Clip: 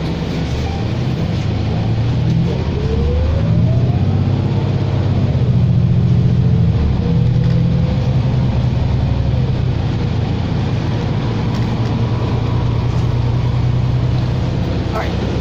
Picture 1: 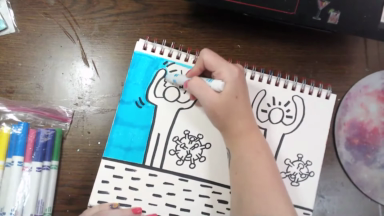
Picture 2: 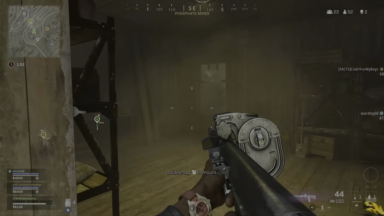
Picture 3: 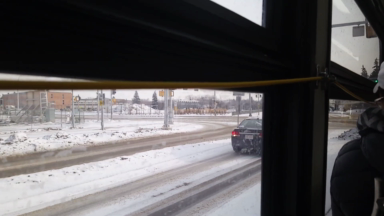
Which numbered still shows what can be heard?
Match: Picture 3